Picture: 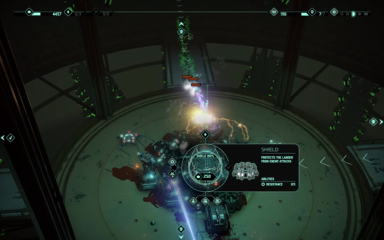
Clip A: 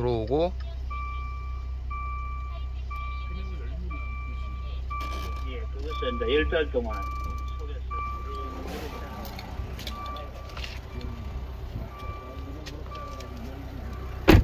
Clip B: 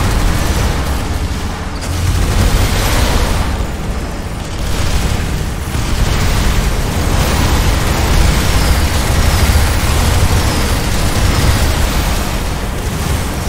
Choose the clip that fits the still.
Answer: B